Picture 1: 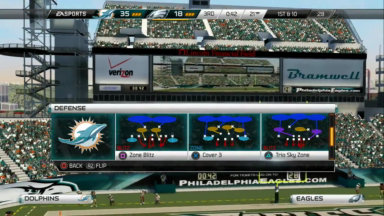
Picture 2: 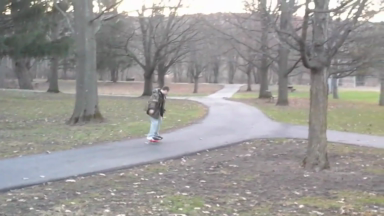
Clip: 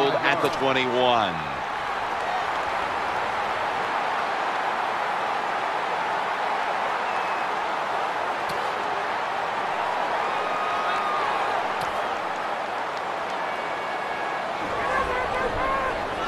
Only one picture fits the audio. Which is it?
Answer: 1